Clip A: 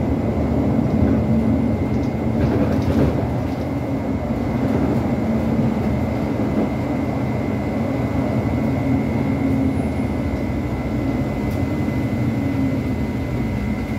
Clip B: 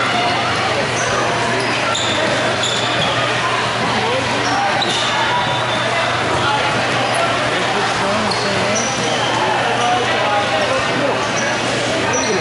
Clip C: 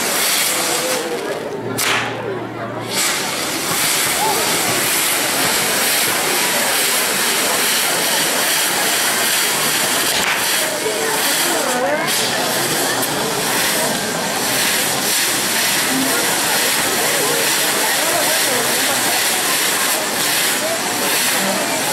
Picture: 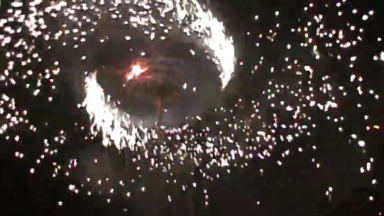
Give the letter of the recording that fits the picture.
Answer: C